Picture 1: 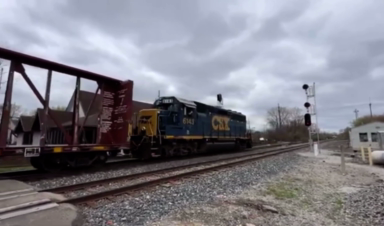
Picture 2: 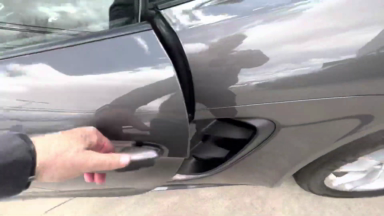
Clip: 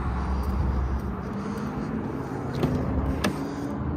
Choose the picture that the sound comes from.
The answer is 2